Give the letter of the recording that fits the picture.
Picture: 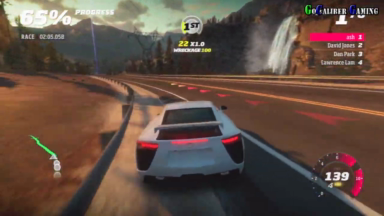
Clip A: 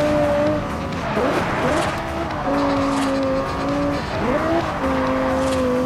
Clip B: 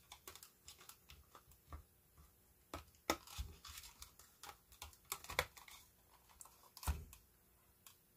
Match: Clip A